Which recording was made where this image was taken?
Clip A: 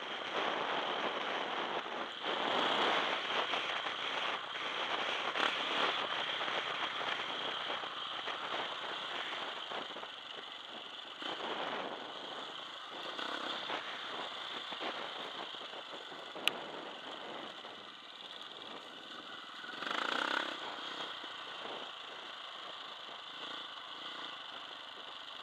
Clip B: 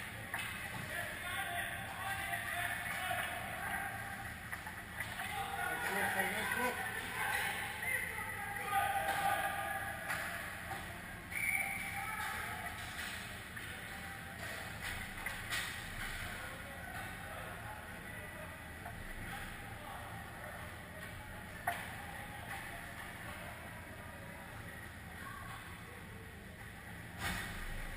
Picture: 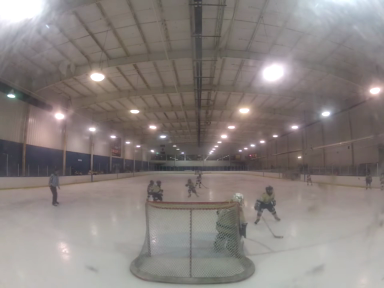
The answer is B